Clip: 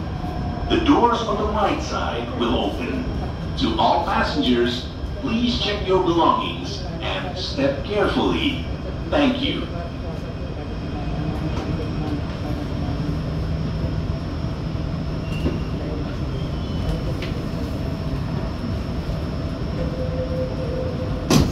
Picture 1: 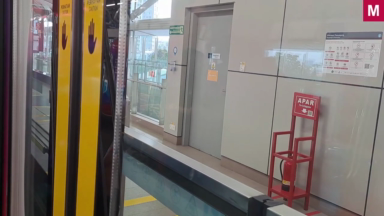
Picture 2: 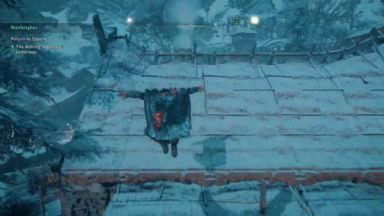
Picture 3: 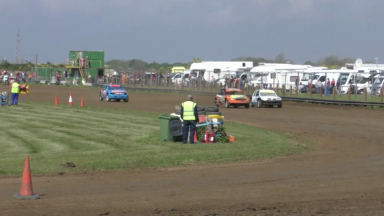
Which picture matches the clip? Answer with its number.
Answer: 1